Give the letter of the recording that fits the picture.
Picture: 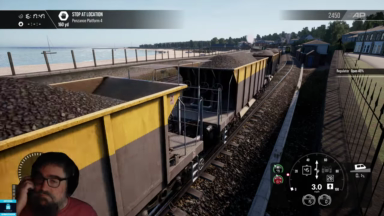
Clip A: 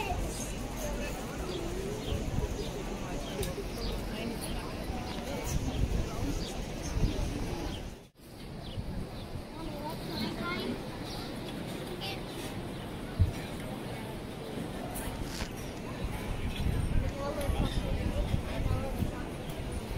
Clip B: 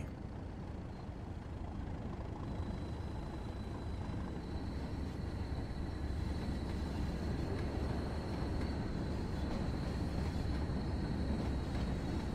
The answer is B